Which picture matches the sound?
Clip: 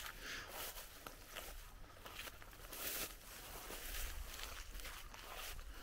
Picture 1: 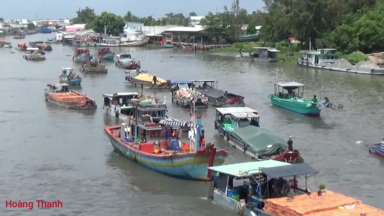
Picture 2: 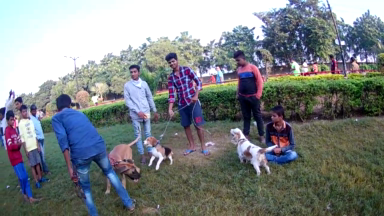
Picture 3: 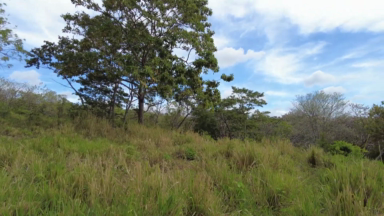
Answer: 3